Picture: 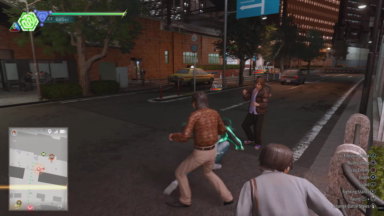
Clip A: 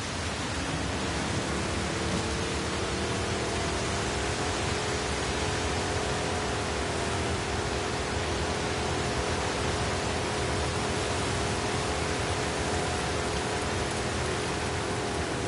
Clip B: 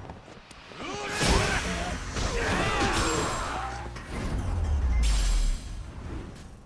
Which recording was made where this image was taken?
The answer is B